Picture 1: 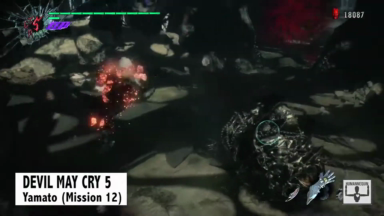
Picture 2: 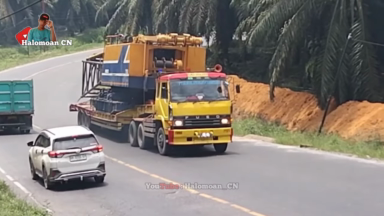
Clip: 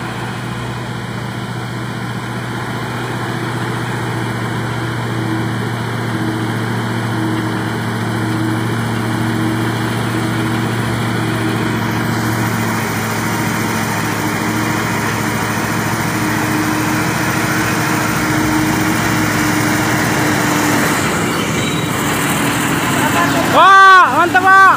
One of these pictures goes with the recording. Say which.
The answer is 2